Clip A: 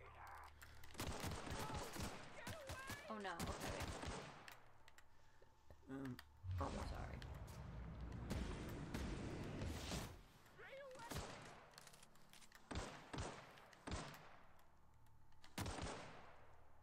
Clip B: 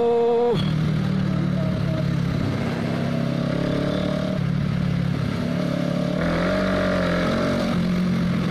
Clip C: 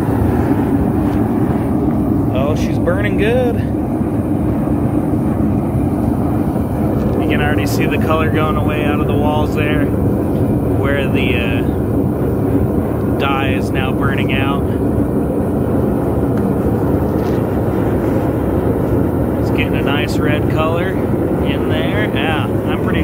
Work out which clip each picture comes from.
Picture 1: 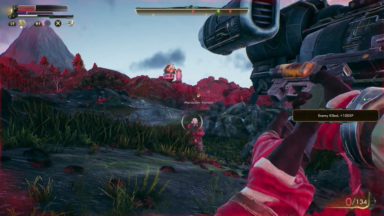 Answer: A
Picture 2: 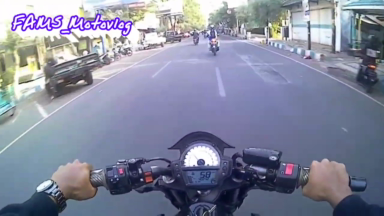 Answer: B